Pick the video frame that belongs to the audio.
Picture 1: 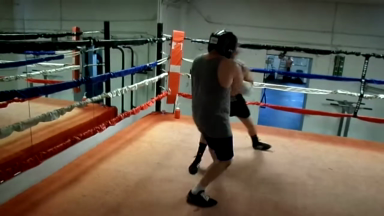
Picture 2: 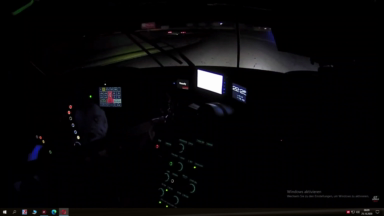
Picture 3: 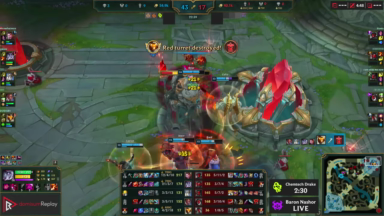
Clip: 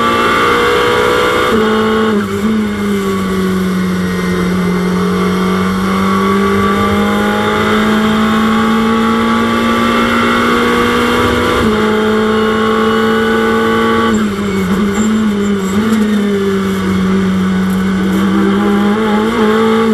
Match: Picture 2